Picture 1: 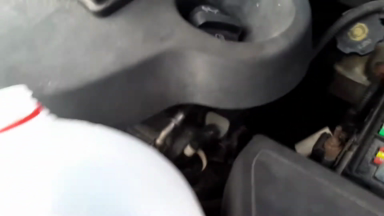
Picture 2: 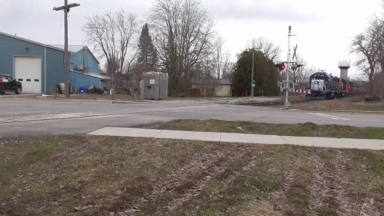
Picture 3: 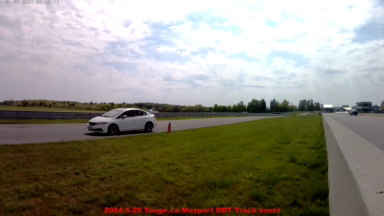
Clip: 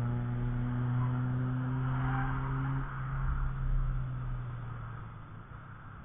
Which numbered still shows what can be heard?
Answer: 3